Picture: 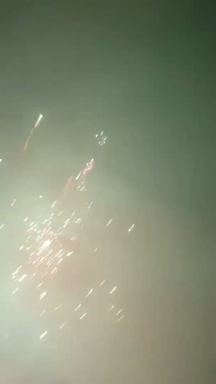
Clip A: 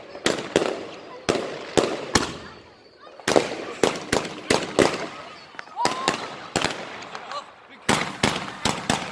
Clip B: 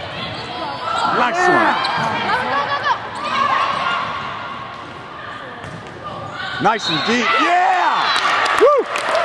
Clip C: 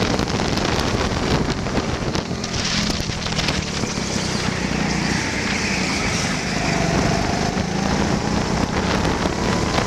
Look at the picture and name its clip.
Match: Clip A